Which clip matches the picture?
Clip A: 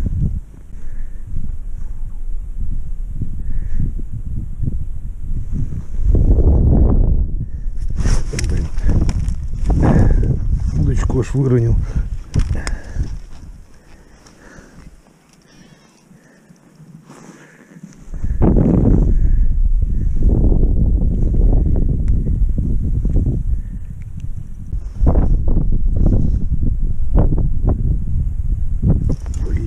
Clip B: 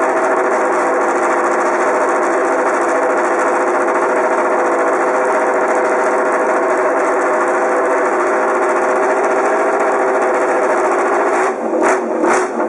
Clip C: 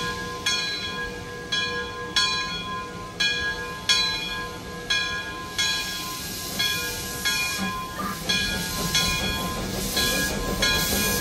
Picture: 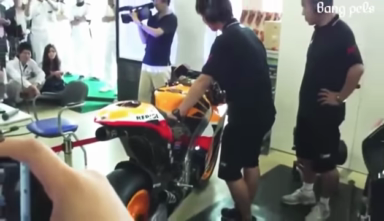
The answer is B